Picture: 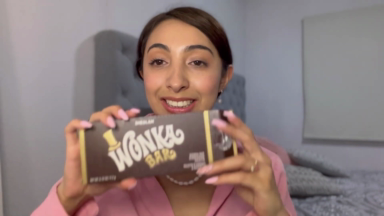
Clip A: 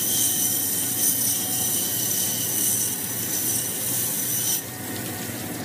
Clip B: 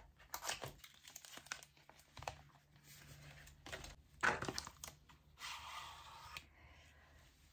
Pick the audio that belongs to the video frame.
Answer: B